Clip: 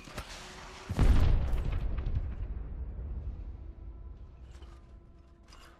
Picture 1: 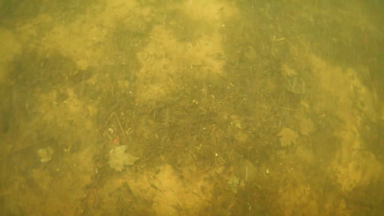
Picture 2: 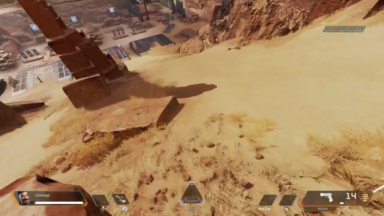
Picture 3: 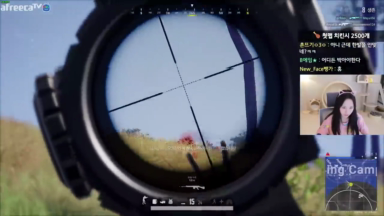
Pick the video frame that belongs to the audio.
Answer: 2